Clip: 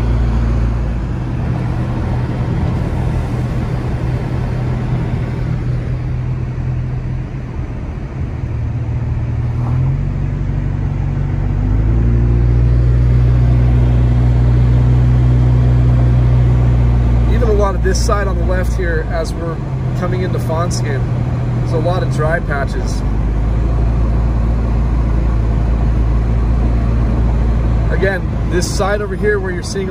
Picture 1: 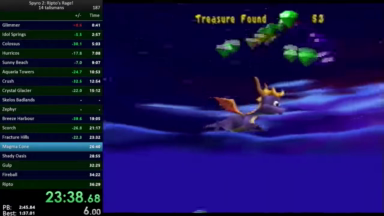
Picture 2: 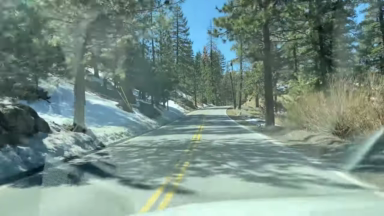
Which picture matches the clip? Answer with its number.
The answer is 2